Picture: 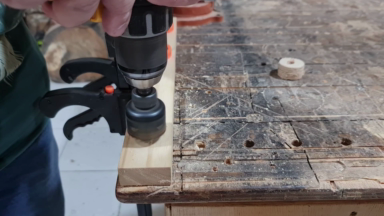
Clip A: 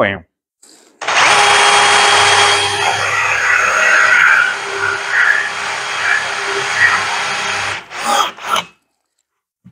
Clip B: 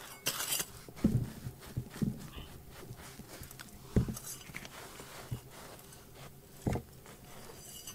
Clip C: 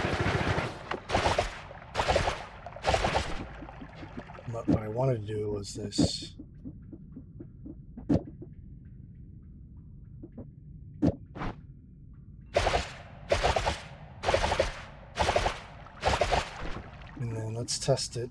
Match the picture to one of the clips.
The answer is A